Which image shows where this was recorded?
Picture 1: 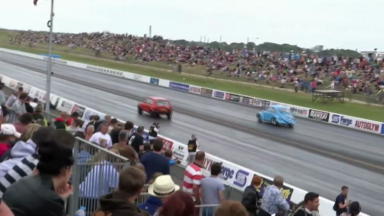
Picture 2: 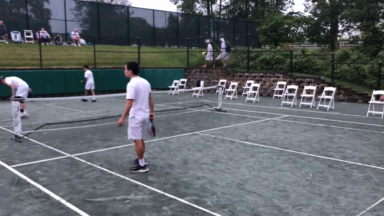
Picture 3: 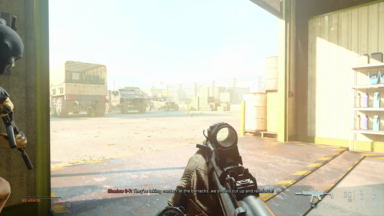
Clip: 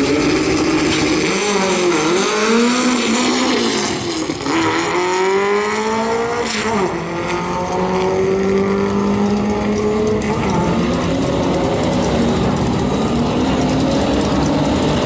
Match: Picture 1